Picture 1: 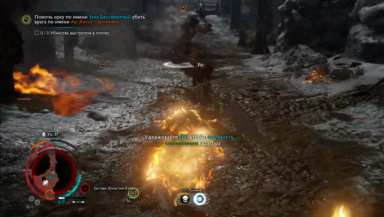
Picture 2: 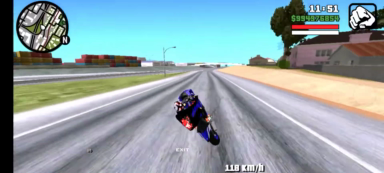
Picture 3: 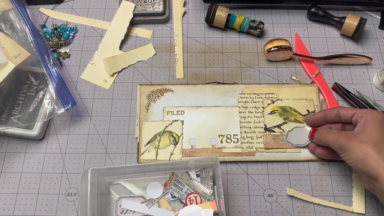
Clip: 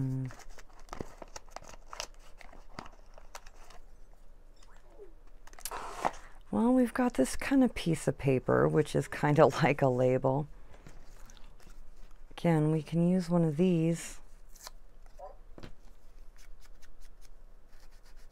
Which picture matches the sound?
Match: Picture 3